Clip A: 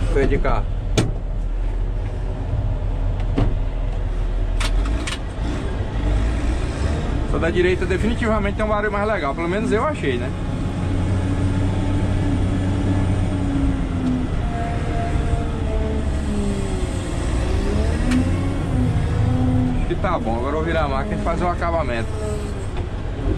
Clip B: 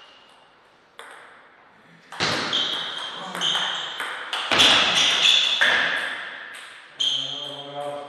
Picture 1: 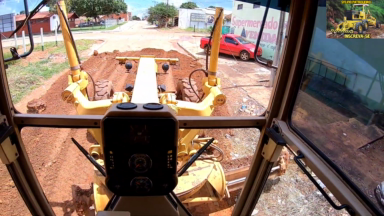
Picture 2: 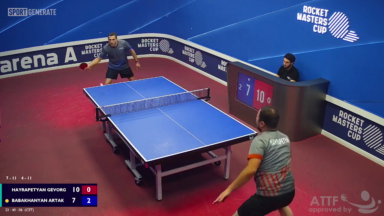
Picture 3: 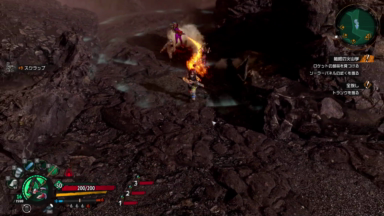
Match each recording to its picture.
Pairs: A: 1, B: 2